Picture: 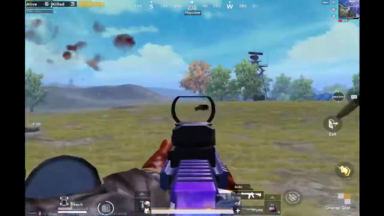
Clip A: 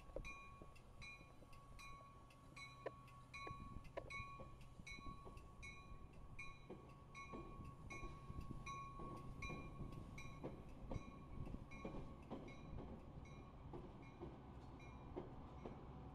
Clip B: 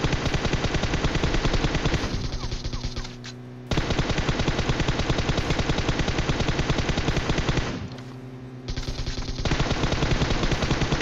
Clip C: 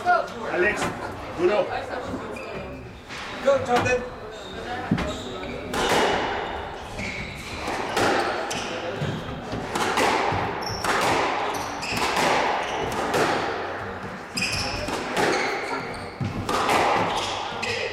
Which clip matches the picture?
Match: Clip B